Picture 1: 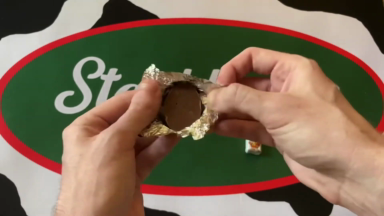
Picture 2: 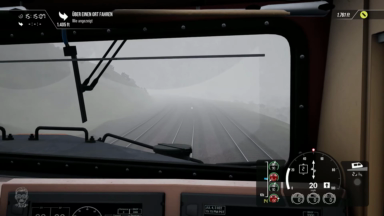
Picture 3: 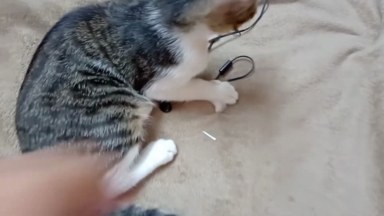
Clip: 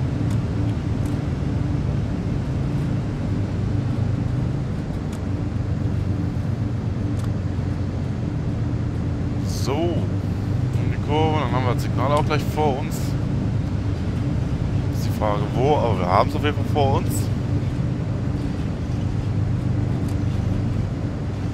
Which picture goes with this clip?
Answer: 2